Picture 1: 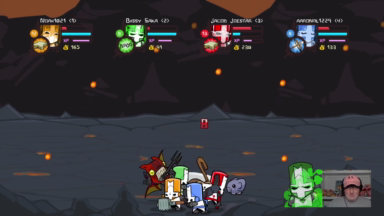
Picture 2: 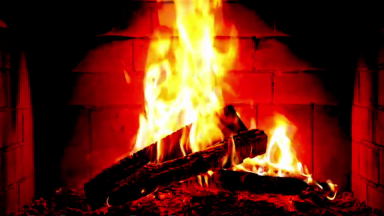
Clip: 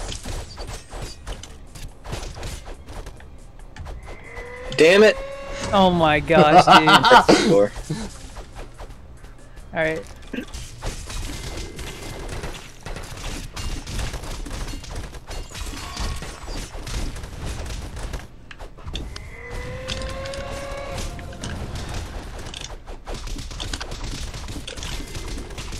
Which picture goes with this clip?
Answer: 1